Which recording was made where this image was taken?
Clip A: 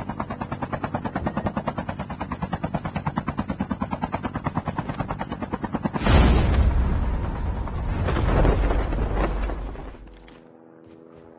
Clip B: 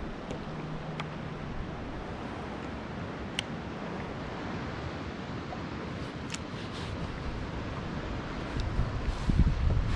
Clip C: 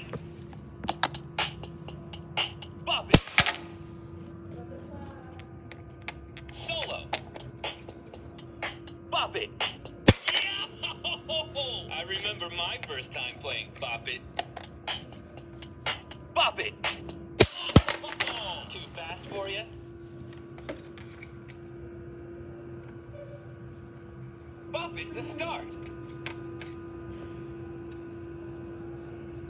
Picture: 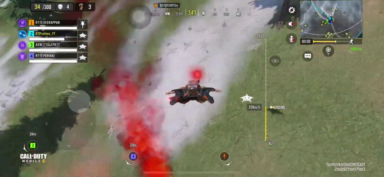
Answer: A